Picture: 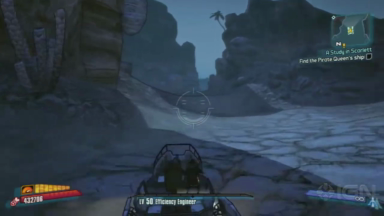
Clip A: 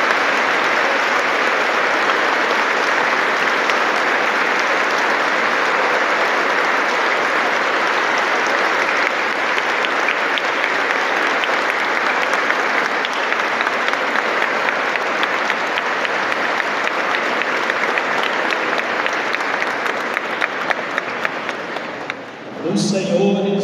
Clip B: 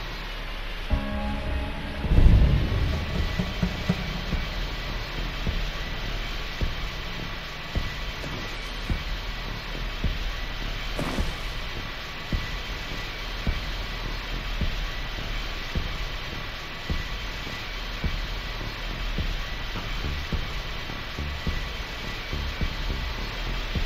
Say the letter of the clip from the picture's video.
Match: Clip B